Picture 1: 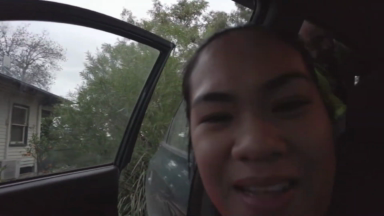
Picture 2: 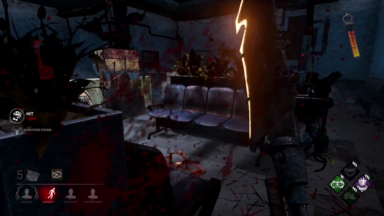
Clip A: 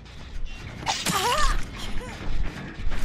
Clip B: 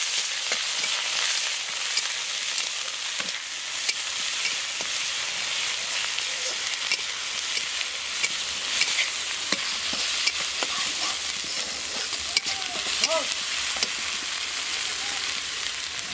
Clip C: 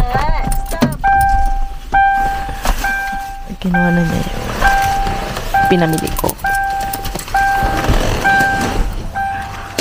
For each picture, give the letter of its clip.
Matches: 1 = C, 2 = A